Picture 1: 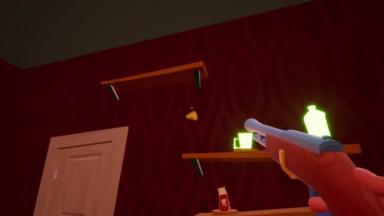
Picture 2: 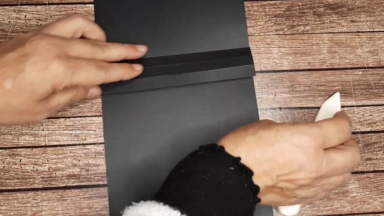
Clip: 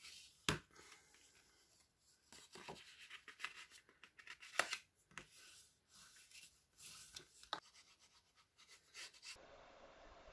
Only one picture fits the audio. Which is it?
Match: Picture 2